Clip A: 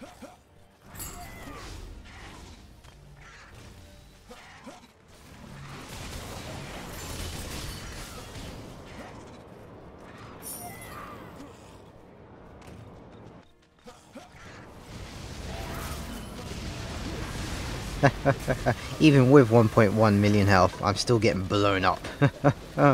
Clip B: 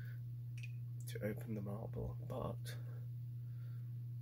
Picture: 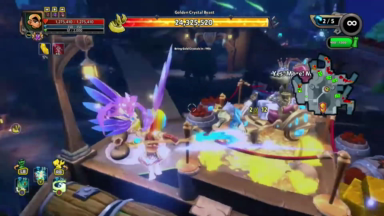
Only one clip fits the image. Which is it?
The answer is A